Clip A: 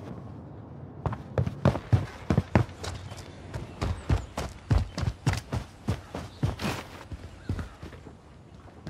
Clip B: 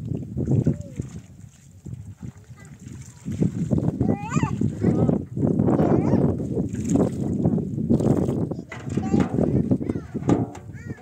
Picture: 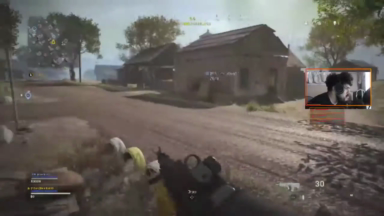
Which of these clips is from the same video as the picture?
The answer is A